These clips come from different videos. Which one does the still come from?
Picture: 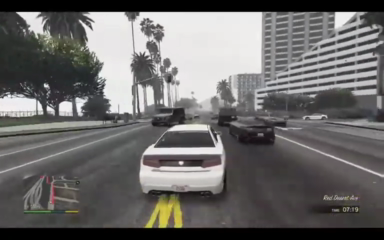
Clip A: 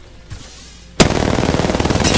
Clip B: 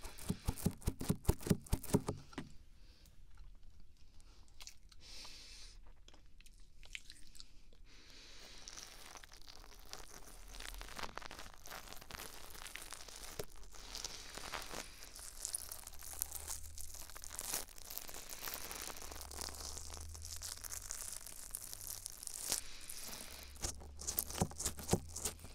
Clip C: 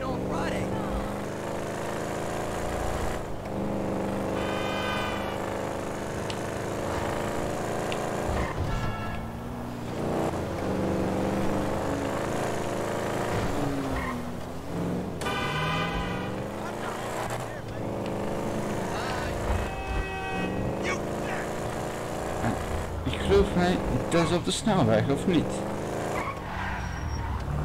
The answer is C